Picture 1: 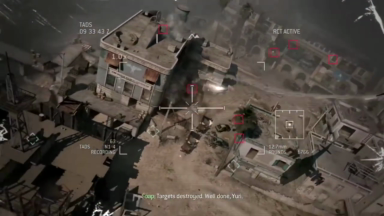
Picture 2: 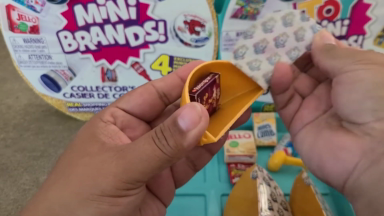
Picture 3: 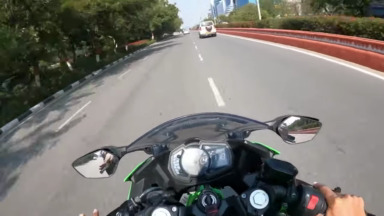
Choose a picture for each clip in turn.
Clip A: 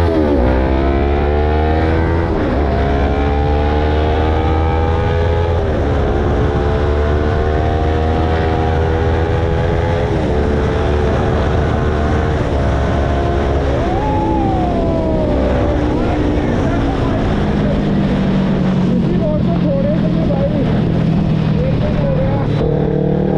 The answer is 3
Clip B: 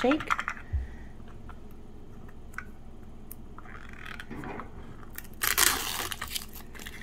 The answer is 2